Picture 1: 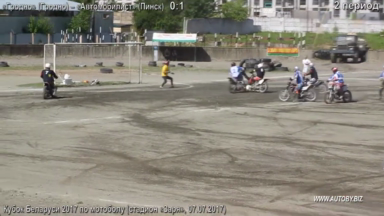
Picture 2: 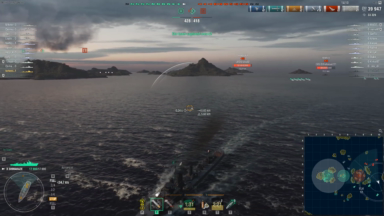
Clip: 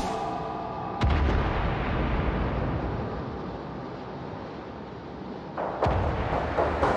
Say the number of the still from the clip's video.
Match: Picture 2